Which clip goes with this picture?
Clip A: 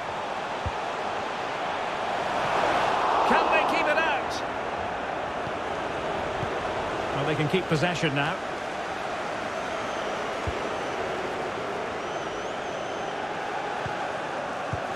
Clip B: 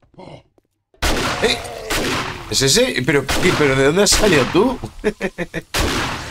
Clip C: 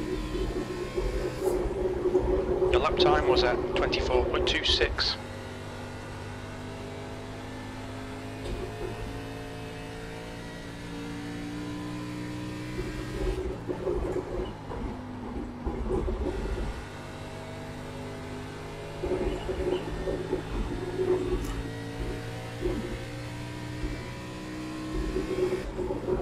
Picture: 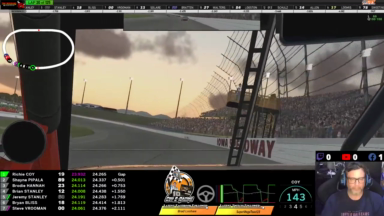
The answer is C